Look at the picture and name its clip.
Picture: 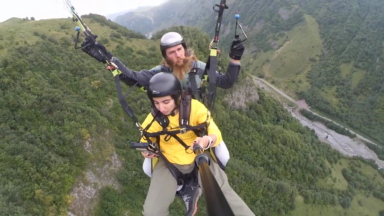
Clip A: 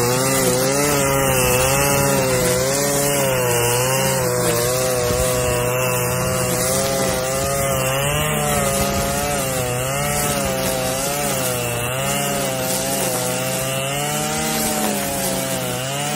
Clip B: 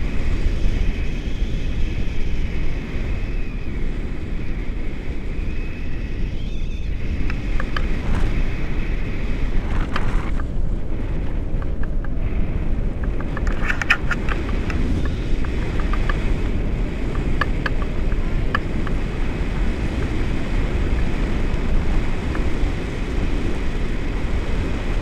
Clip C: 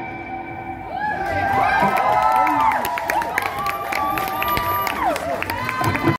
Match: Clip B